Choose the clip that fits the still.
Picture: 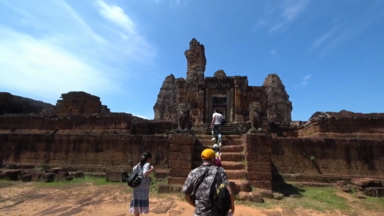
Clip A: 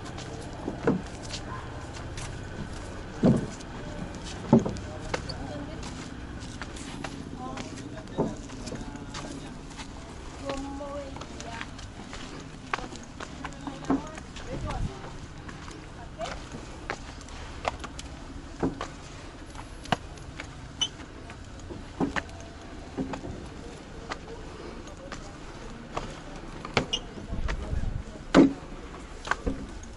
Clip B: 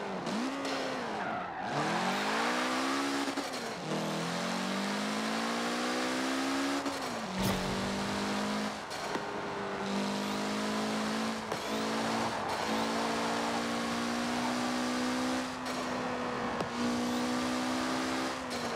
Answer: A